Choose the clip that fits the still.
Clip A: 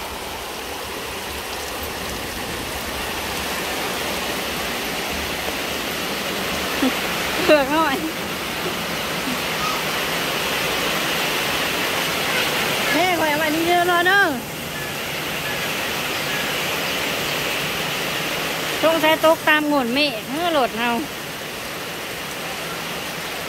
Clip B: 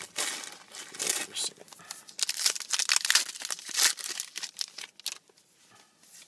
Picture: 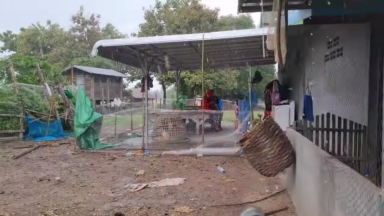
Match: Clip A